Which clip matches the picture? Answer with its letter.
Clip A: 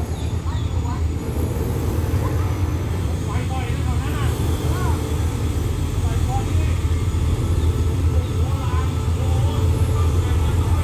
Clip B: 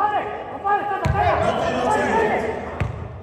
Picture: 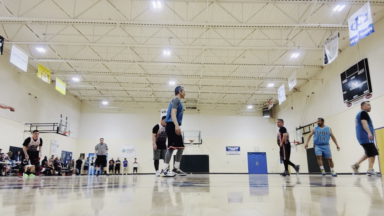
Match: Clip B